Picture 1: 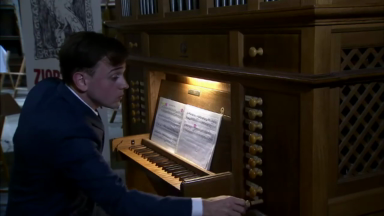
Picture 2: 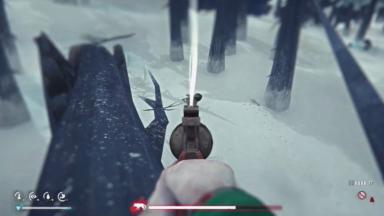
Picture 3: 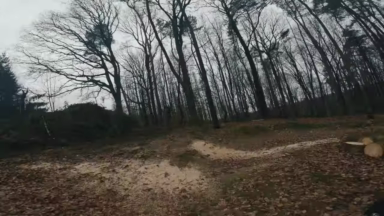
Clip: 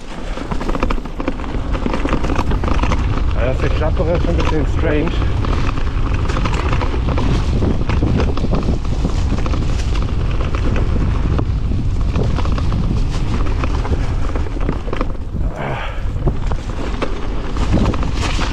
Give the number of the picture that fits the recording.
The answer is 3